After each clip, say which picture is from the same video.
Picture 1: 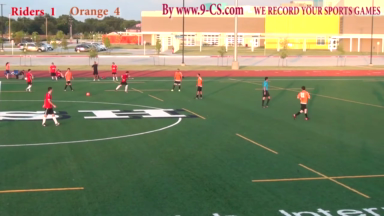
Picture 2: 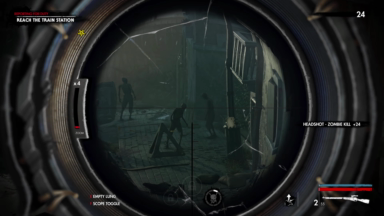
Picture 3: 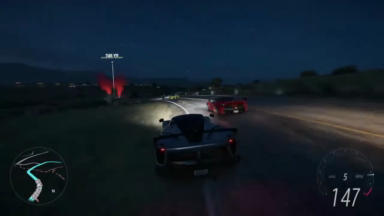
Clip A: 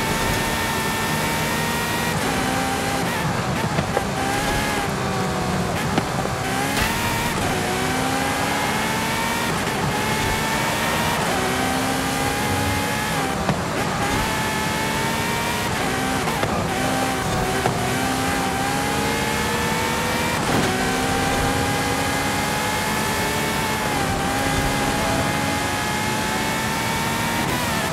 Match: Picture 3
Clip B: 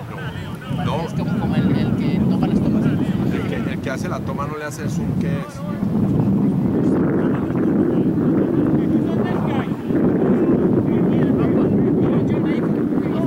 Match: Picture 1